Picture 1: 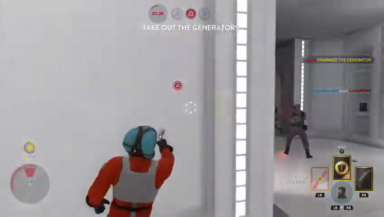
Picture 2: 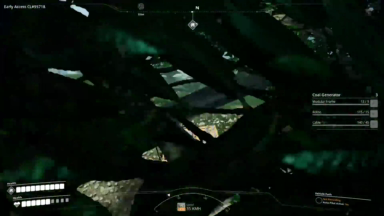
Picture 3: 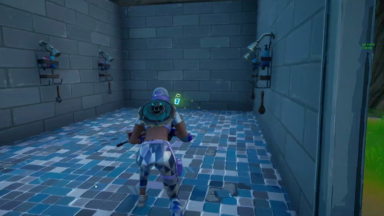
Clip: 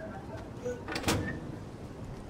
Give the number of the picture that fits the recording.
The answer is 3